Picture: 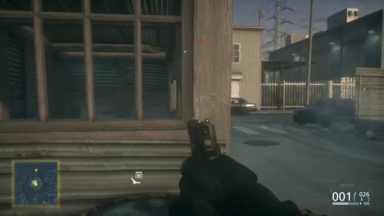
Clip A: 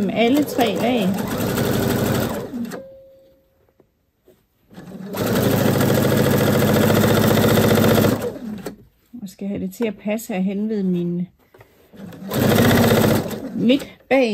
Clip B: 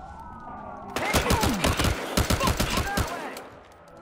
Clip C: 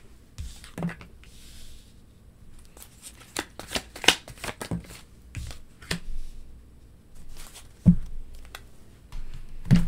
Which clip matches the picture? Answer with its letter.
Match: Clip B